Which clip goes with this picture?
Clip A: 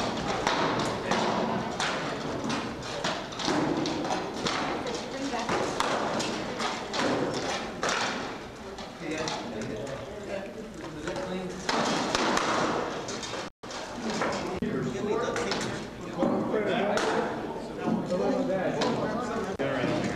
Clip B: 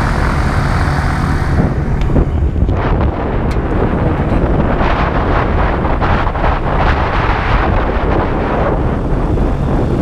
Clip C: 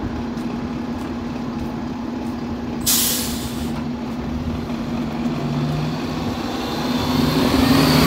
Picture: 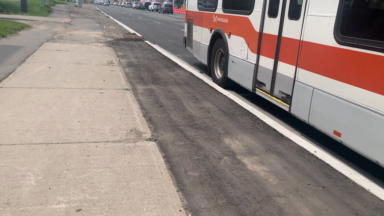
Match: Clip C